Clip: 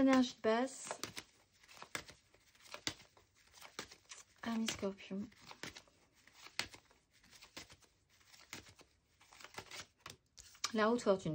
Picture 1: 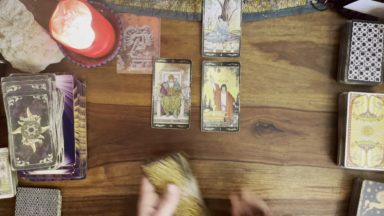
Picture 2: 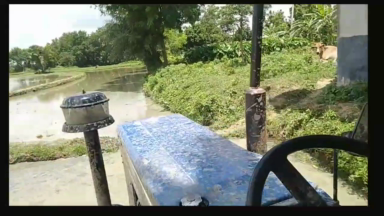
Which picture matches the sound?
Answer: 1